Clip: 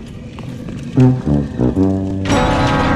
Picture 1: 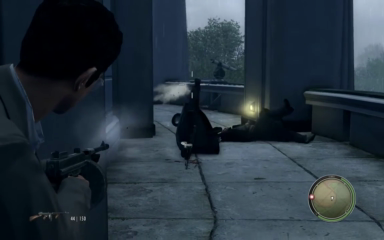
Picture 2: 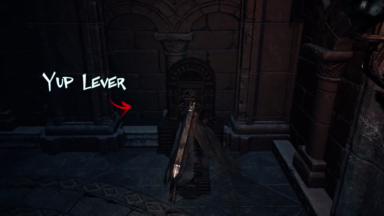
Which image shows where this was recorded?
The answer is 2